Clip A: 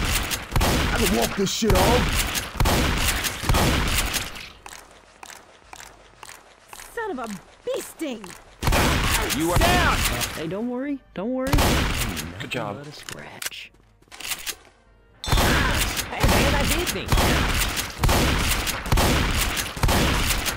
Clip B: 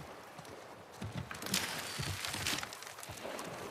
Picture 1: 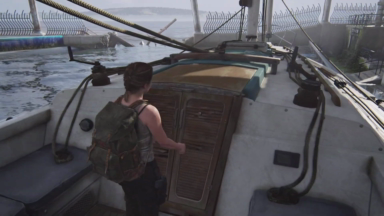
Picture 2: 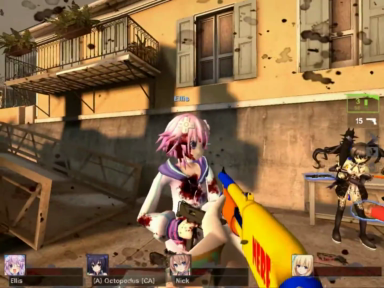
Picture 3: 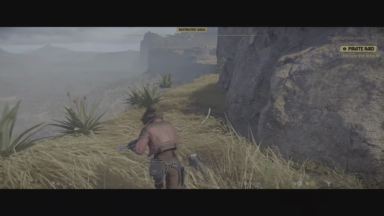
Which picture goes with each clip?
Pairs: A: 2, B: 1